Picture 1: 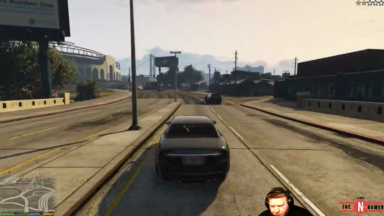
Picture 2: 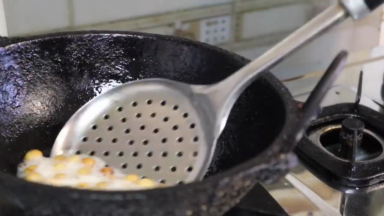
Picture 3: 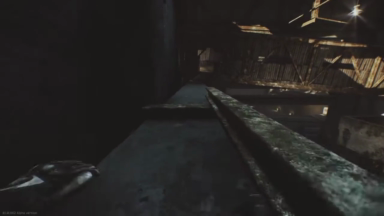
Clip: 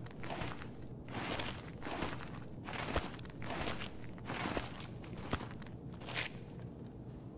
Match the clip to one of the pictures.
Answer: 3